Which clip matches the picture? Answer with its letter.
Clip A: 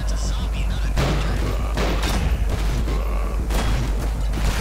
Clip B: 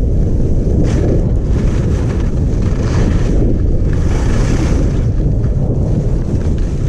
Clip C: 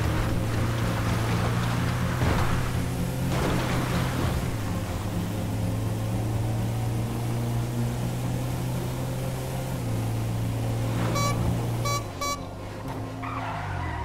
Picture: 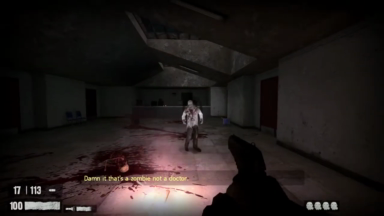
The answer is A